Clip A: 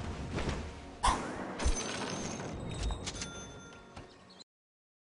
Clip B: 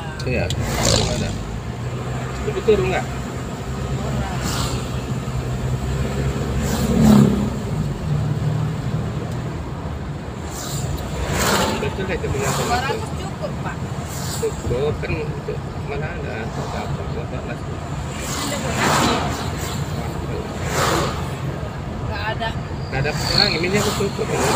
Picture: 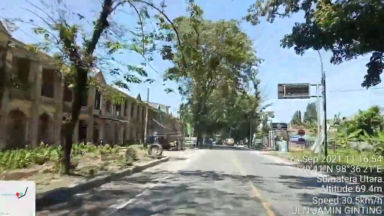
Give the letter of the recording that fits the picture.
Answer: B